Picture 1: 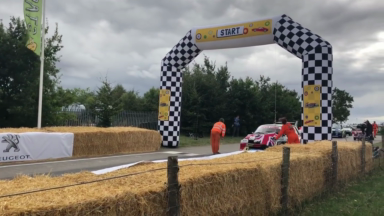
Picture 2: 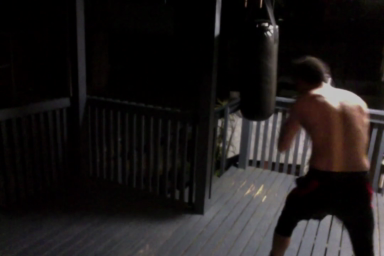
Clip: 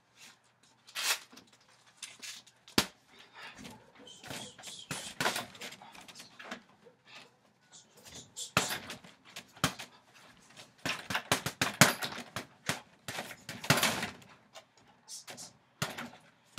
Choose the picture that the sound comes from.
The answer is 2